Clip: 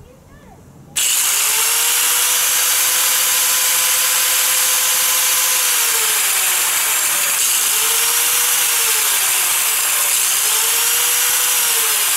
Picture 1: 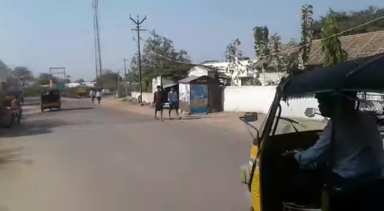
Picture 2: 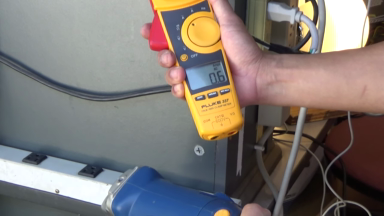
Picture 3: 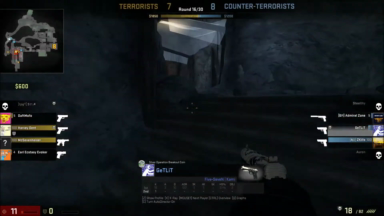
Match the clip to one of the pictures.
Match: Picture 2